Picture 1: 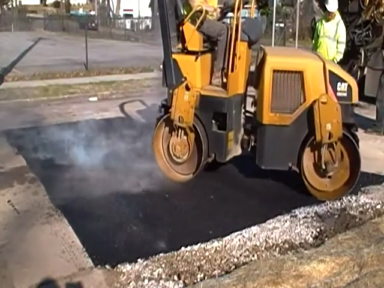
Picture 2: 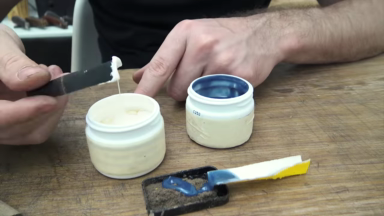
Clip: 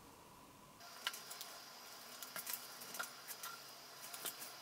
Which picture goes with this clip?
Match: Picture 2